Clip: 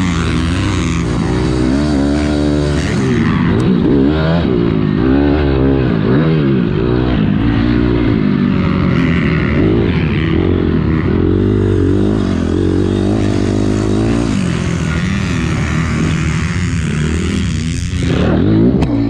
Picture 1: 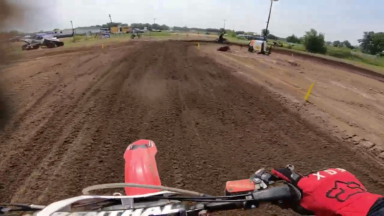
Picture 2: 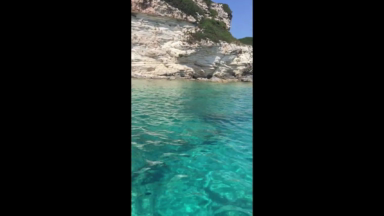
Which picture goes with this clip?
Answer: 1